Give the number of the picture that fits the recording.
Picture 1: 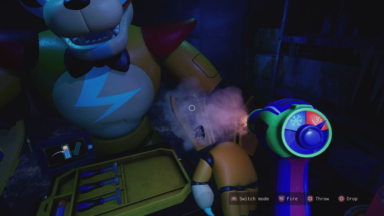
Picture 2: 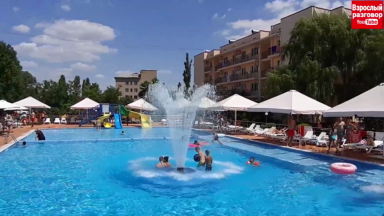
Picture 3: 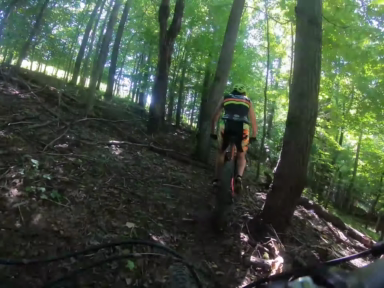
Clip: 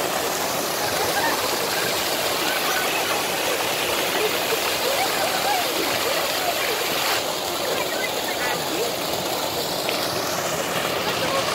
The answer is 2